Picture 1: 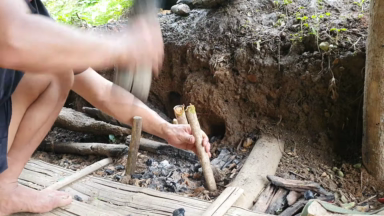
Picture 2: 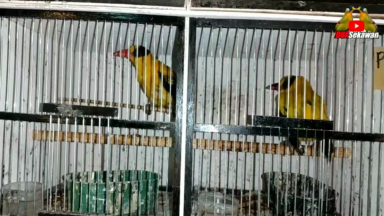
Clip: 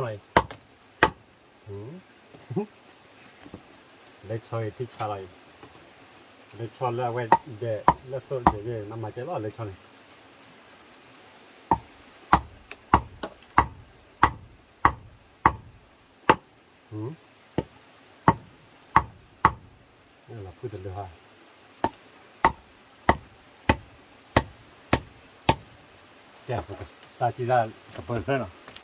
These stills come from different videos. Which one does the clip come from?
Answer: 1